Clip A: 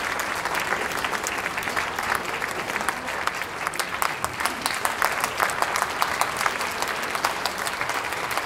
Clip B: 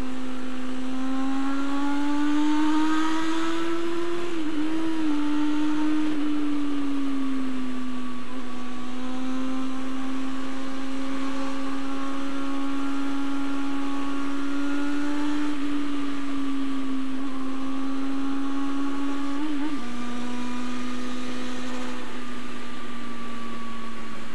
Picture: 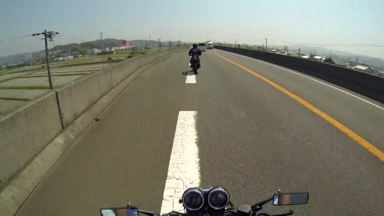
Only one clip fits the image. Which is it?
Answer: B